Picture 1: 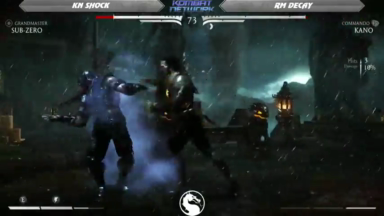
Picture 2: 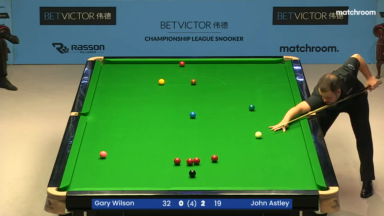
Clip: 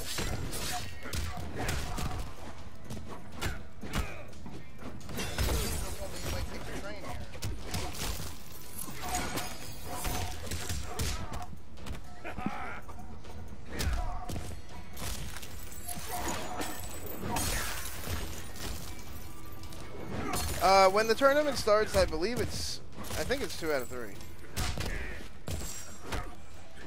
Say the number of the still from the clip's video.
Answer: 1